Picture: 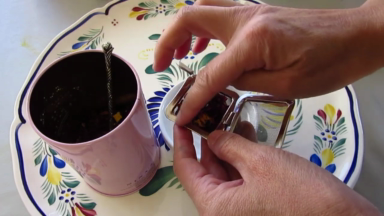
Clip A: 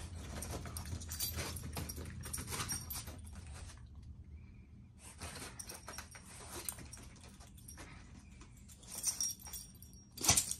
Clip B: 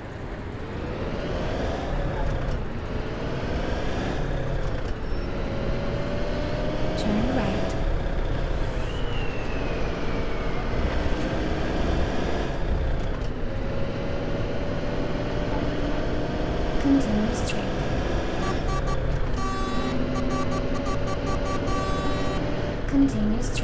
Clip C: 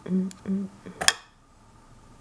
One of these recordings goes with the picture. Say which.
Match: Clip C